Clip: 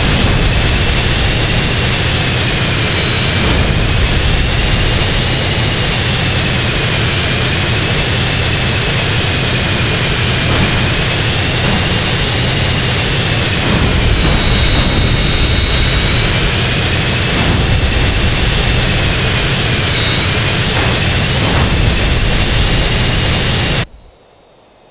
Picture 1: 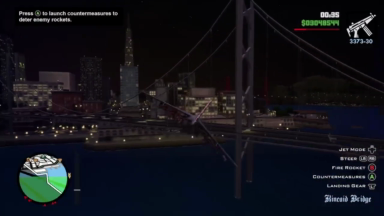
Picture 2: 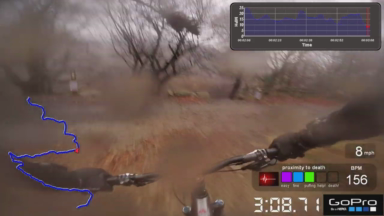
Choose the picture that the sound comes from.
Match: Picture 1